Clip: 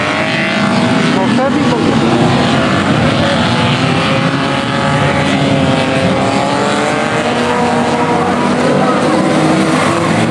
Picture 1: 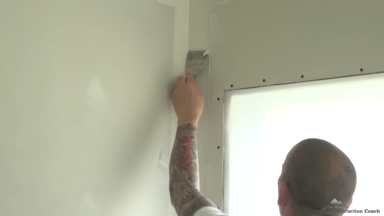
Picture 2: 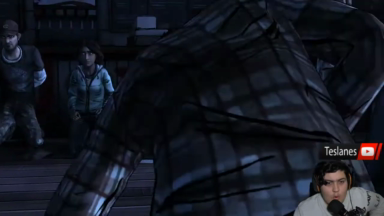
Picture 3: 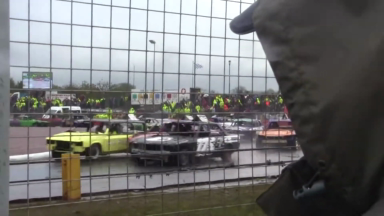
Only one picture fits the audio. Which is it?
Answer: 3